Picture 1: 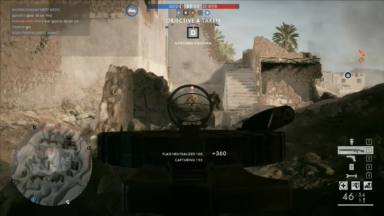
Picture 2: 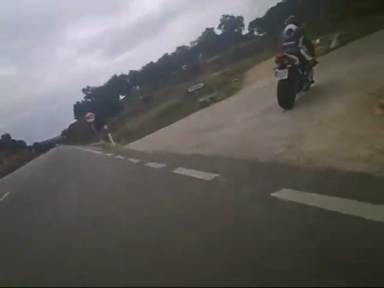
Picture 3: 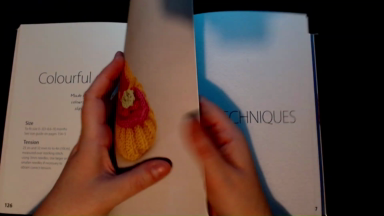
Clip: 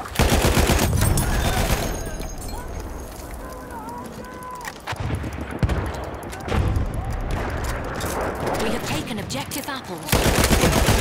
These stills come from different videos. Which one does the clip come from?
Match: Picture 1